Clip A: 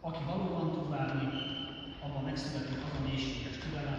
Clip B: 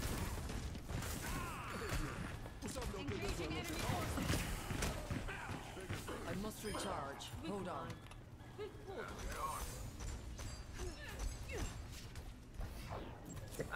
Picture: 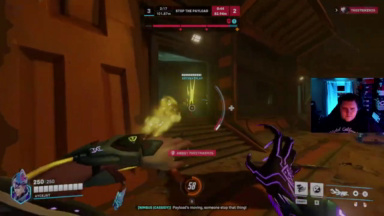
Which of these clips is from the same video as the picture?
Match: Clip B